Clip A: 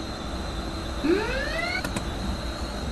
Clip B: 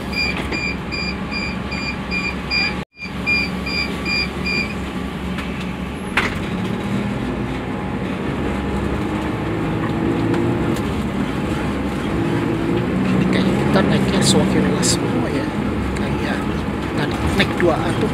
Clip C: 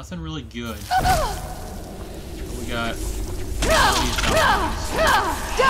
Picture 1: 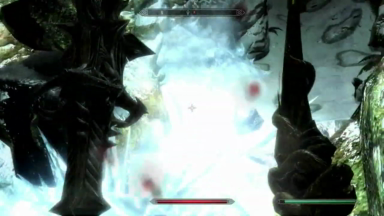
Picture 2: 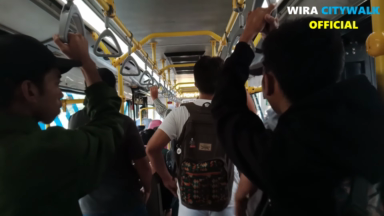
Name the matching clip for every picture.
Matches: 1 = C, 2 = B